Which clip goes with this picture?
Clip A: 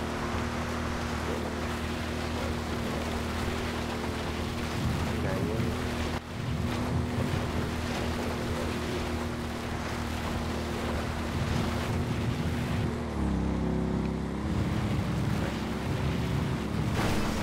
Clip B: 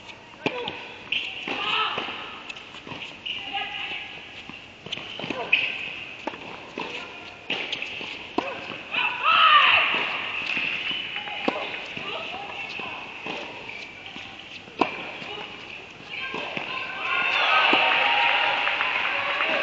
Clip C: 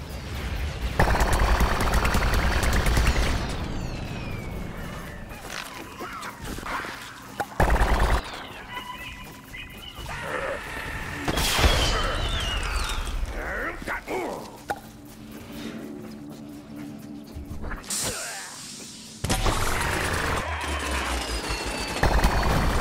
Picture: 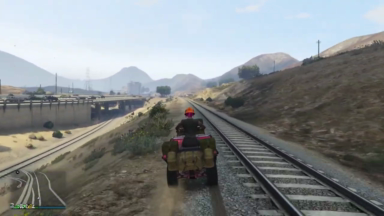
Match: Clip A